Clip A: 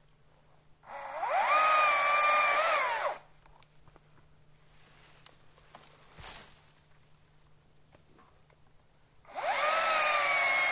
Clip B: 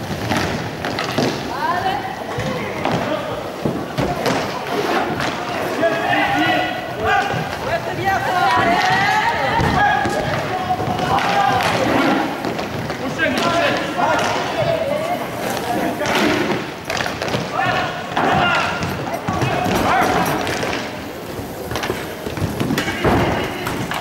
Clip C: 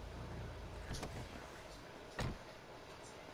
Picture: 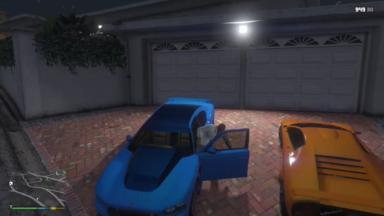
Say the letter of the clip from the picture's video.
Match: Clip C